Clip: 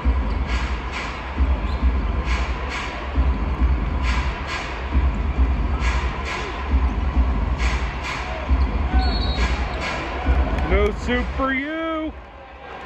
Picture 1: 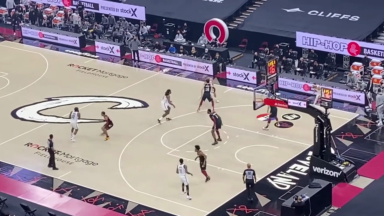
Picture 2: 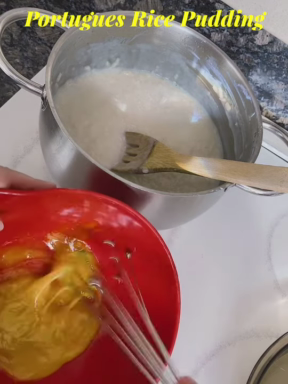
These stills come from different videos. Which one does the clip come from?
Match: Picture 1